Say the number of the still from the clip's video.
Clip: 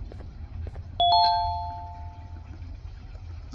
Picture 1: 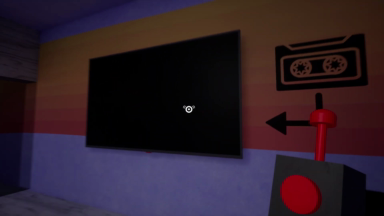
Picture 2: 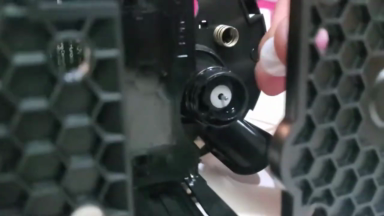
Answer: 1